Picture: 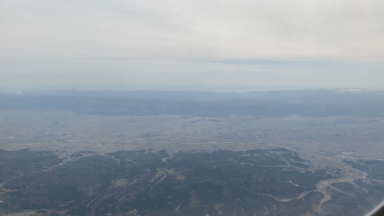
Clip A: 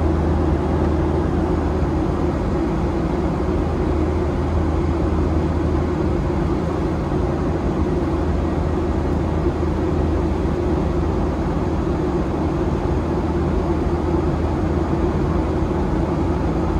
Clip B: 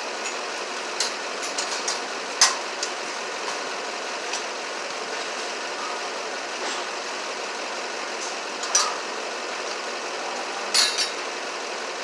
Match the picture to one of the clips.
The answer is A